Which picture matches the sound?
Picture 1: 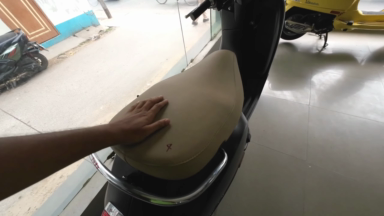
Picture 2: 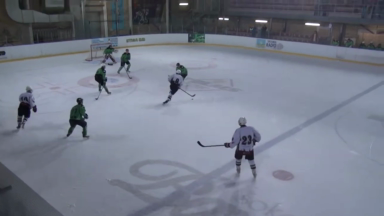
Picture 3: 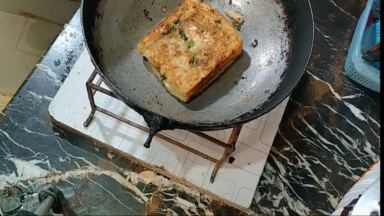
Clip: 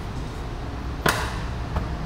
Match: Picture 1